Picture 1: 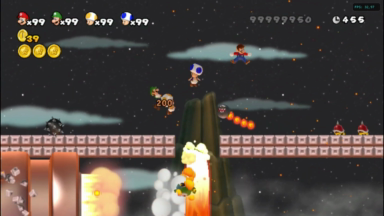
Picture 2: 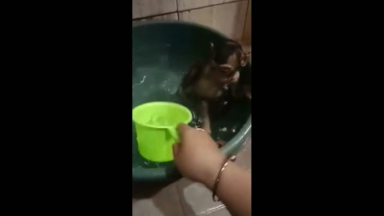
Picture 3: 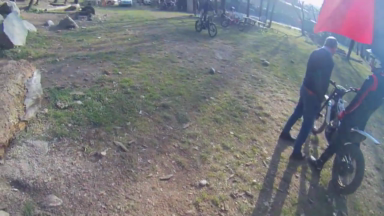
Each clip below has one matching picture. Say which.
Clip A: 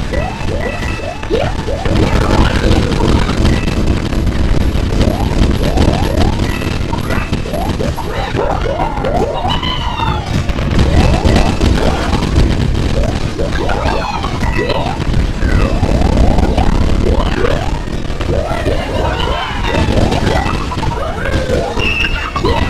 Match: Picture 1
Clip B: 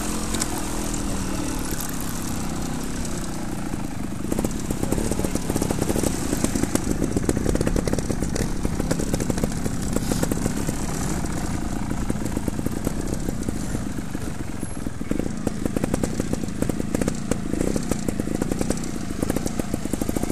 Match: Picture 3